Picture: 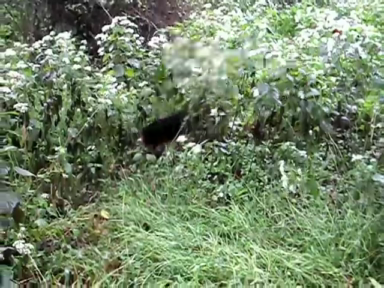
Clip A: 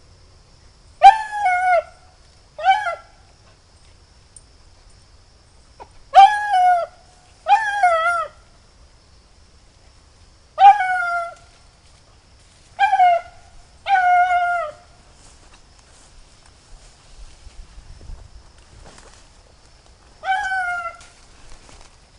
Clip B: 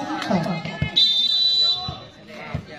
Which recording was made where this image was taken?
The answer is A